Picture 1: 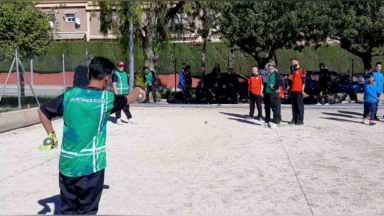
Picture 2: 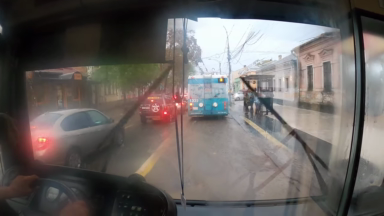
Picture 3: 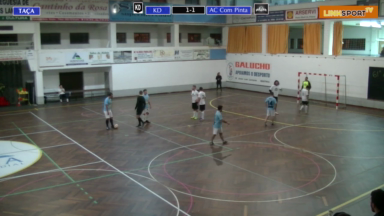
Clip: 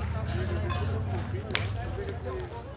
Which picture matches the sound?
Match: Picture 1